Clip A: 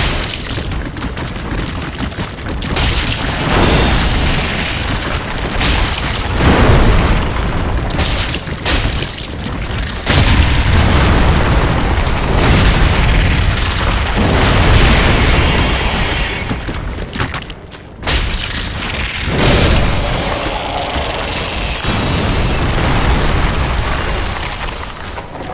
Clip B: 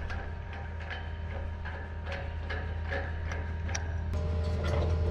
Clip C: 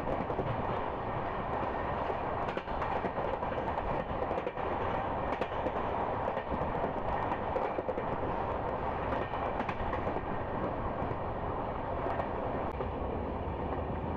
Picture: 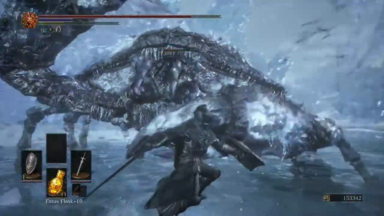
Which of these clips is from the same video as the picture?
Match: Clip A